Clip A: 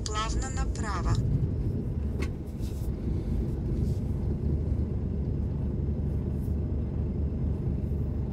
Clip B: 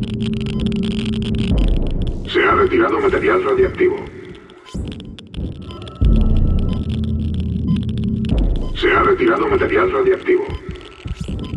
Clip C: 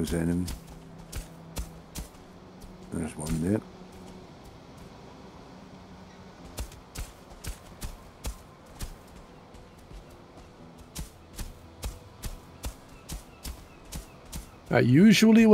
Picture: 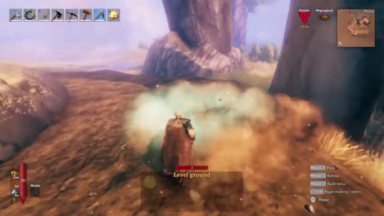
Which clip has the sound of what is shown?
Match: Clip C